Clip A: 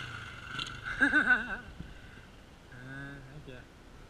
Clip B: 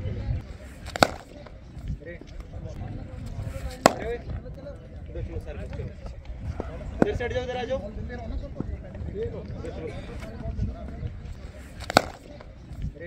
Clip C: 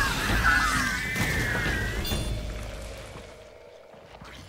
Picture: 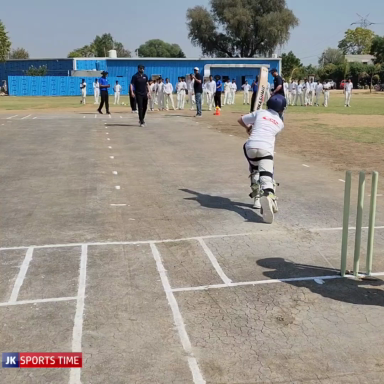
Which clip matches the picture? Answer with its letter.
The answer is B